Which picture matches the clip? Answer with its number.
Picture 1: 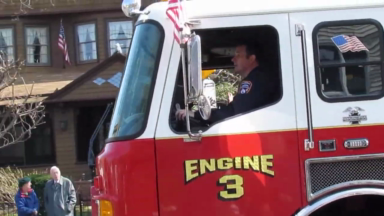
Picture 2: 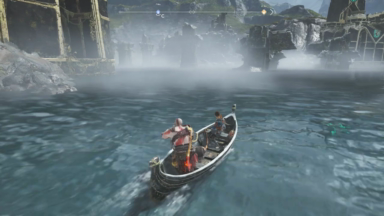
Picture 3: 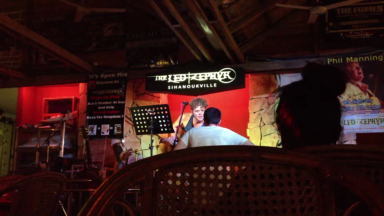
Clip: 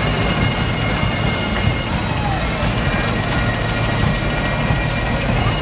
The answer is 1